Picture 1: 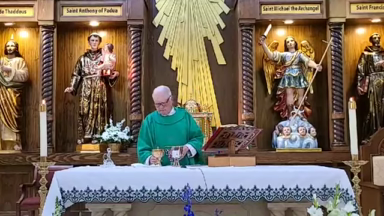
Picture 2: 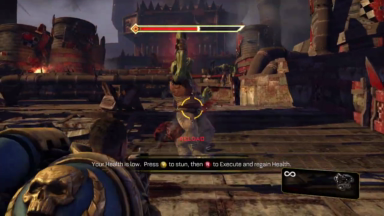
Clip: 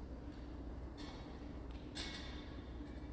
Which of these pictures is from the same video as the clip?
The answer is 1